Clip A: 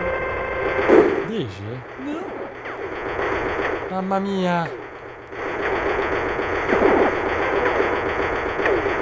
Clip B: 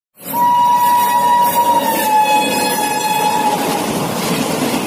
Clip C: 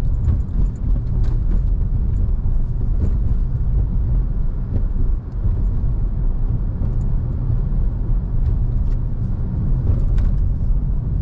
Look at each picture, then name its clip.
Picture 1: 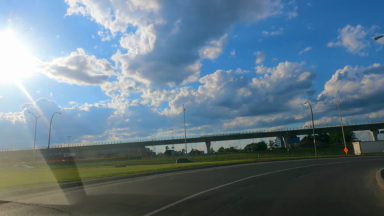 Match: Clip C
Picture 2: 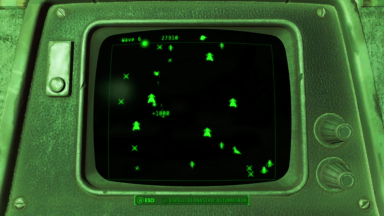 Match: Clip A